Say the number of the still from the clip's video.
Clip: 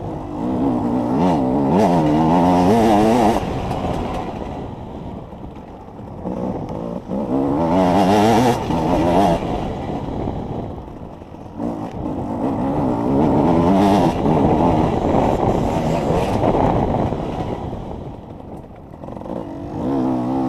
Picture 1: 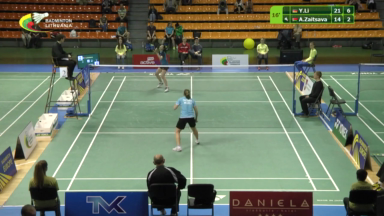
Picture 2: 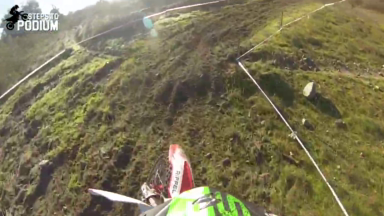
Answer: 2